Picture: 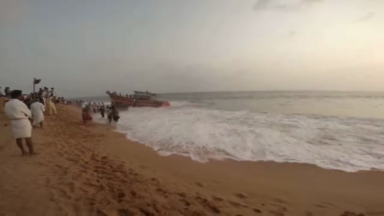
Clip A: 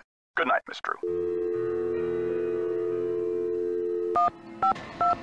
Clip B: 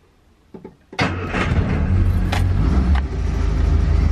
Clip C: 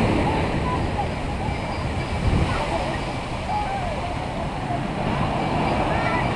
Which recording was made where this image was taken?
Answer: C